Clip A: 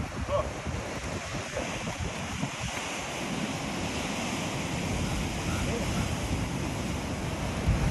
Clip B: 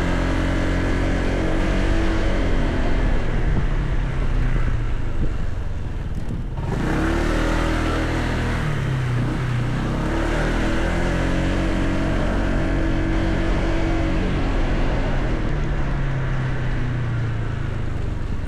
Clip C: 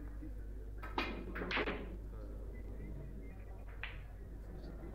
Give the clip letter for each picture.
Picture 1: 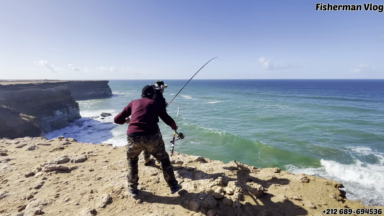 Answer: A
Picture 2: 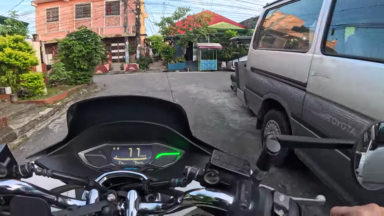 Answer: B